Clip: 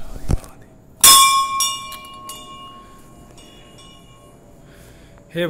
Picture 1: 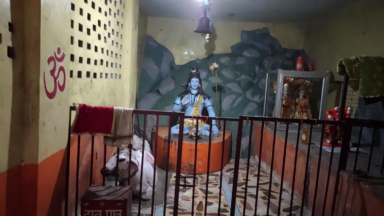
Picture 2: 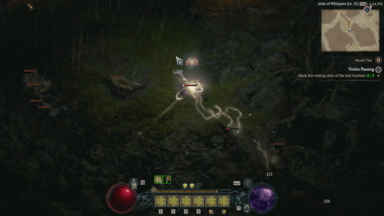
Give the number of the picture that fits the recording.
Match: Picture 1